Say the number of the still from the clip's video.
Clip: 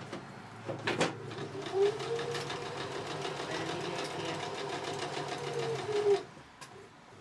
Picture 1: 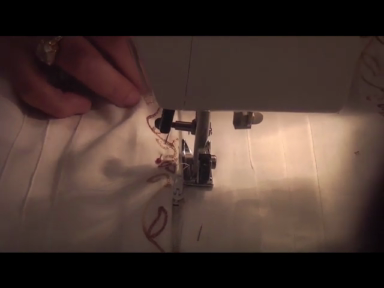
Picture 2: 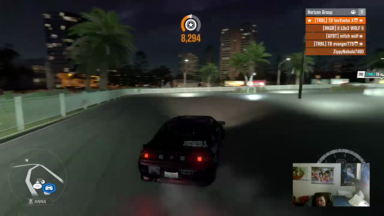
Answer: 1